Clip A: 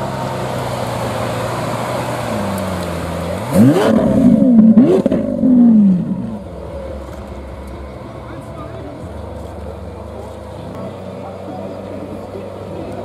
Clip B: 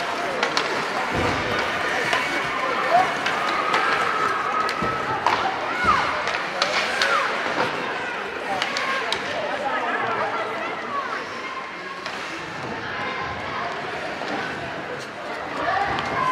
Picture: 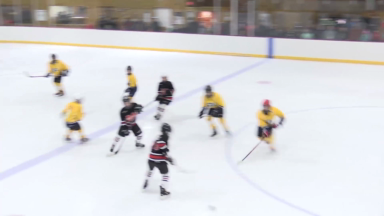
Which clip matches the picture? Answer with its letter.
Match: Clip B